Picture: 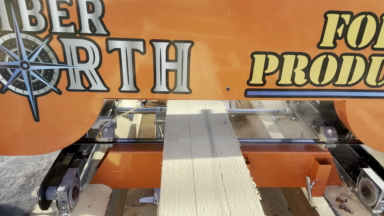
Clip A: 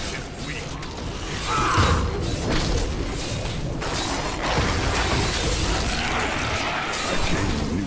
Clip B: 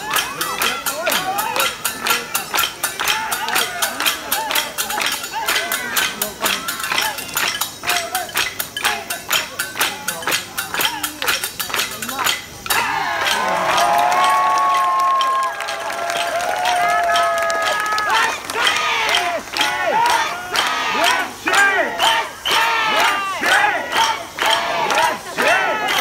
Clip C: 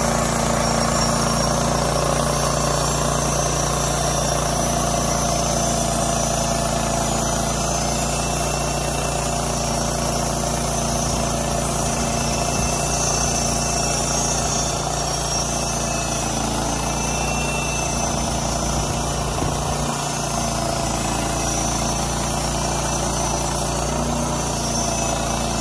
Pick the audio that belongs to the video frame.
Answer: C